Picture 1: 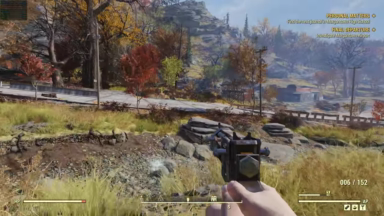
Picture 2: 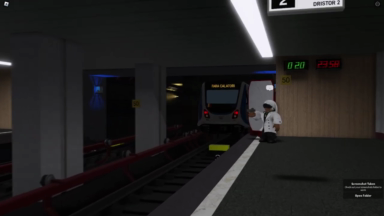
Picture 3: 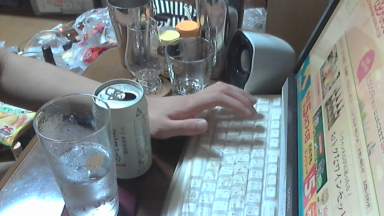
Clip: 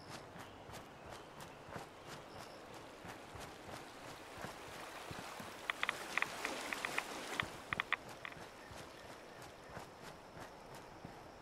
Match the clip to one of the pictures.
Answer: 1